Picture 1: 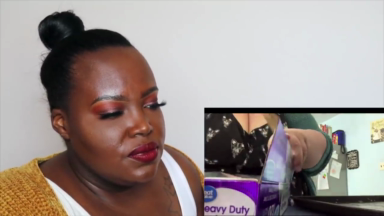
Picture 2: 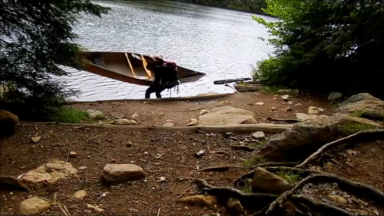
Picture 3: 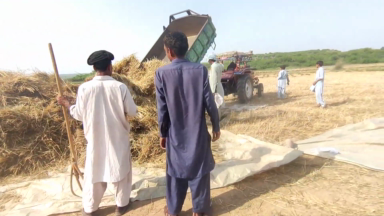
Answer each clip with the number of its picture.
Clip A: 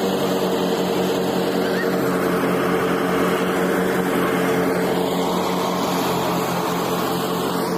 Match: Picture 3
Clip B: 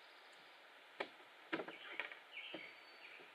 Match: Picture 2